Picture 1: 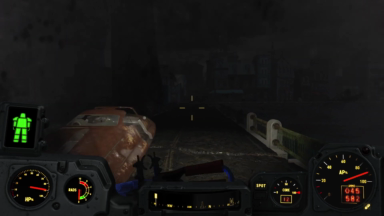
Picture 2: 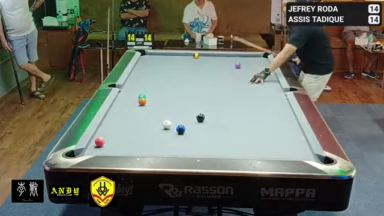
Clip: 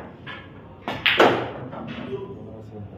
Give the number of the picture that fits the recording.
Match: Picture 2